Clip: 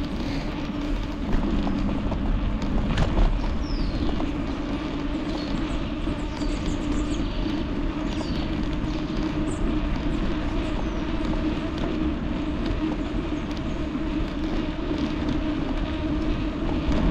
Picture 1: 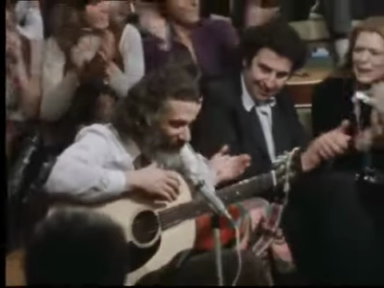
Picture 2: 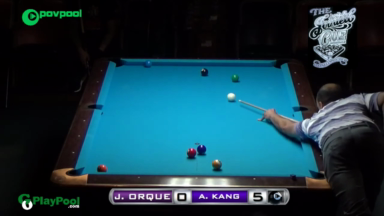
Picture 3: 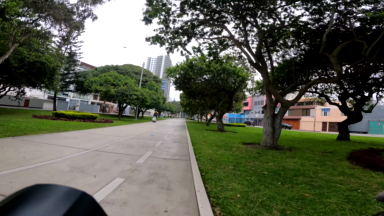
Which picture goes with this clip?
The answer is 3